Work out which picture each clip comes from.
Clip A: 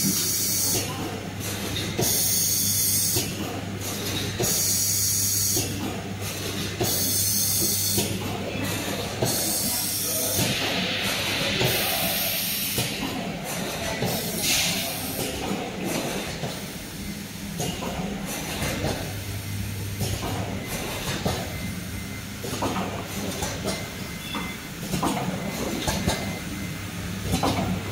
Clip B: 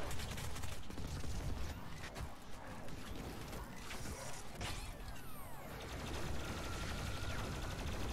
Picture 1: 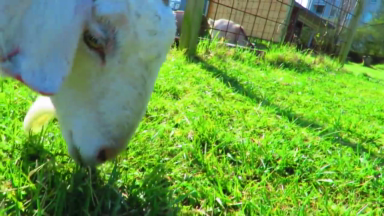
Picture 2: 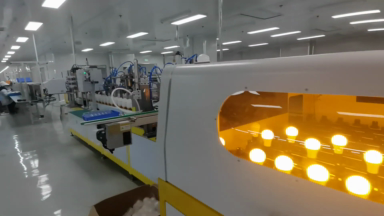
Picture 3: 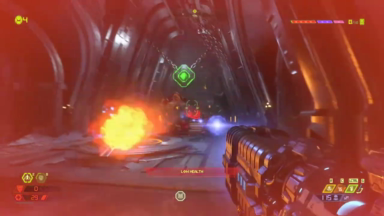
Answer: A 2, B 3